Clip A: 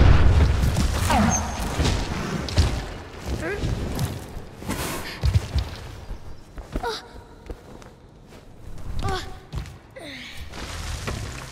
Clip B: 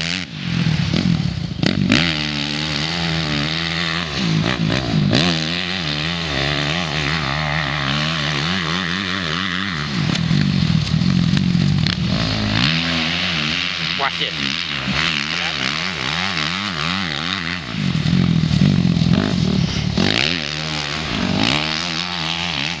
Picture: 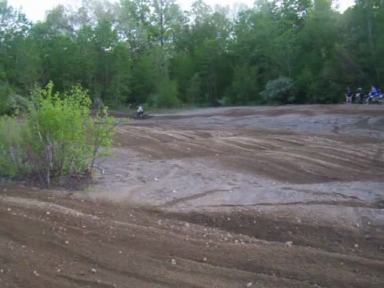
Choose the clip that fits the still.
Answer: B